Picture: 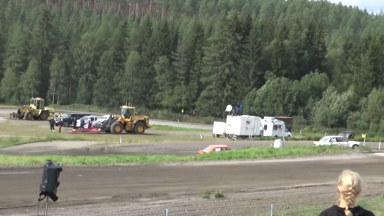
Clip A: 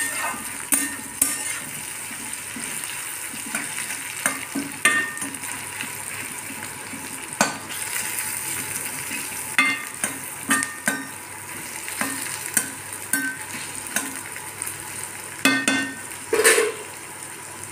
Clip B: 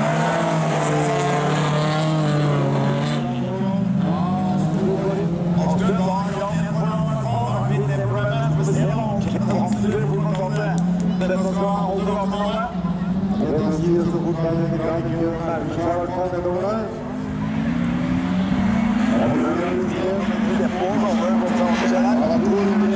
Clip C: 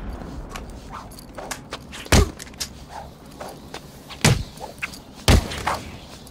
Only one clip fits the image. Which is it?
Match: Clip B